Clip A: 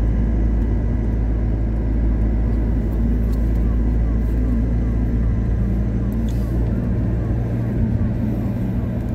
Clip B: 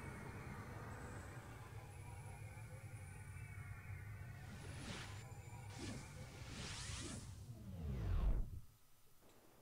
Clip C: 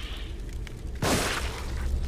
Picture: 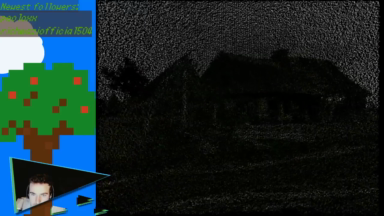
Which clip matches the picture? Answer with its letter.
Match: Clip B